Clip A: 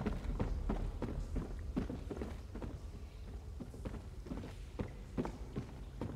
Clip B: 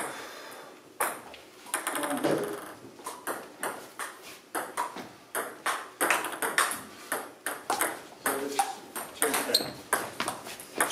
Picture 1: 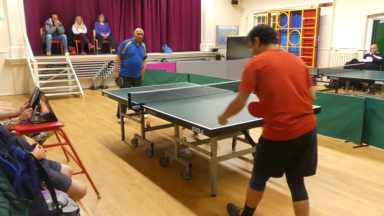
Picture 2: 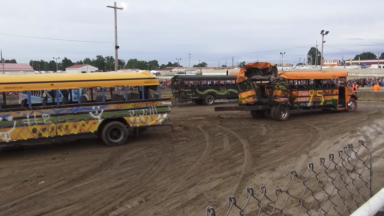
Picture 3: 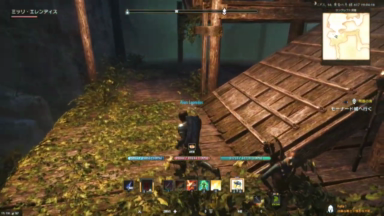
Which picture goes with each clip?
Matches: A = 3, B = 1